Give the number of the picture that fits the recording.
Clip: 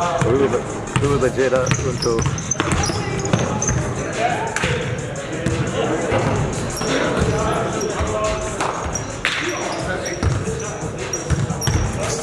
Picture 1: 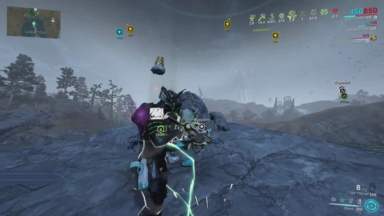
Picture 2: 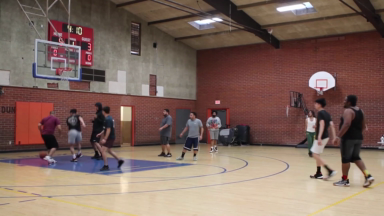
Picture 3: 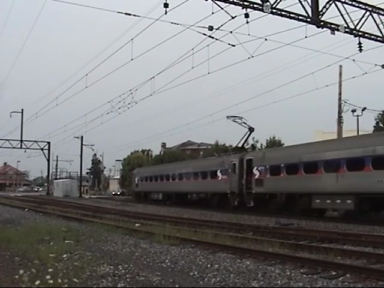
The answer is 2